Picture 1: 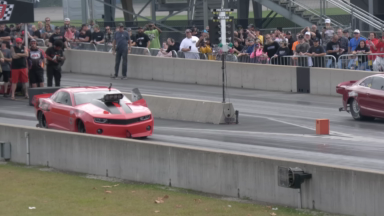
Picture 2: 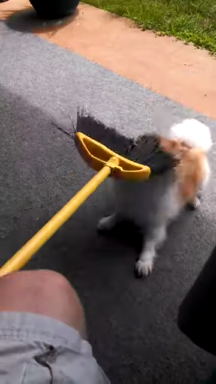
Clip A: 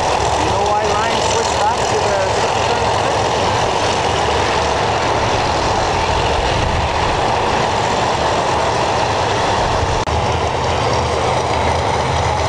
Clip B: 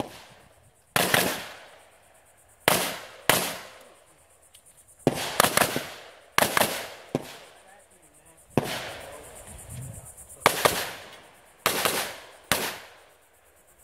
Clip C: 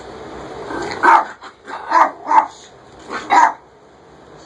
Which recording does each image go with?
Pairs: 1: A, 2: C